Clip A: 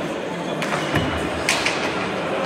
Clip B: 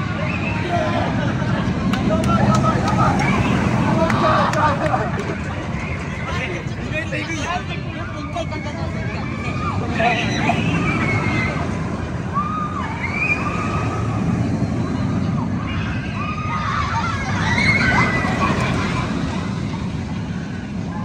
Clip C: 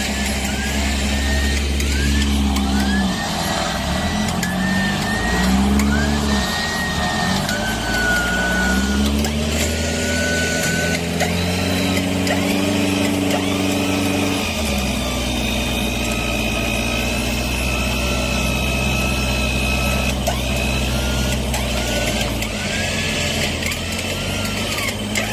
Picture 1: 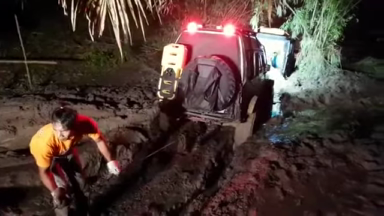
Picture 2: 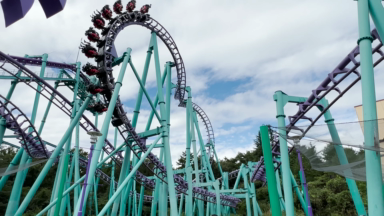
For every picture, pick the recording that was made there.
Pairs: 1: C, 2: B